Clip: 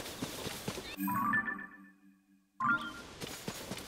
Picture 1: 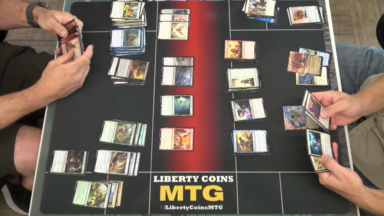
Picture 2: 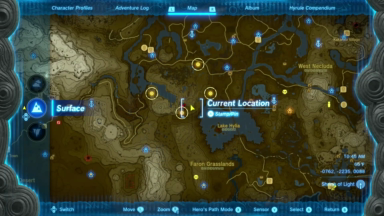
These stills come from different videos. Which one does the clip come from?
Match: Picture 2